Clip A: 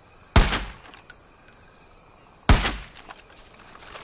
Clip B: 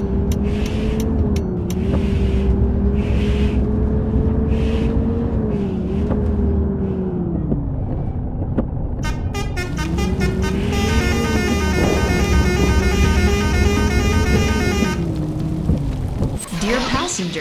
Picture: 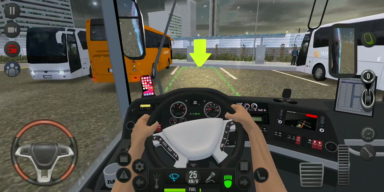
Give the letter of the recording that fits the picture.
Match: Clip B